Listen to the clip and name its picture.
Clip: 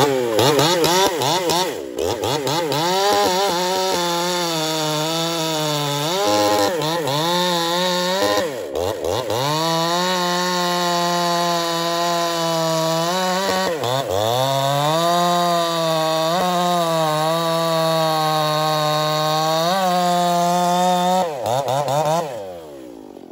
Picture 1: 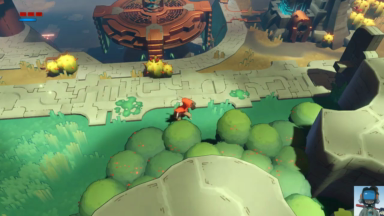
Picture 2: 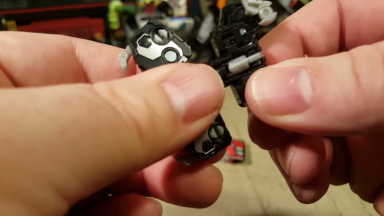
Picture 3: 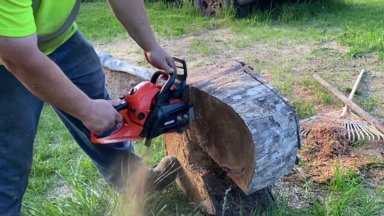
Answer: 3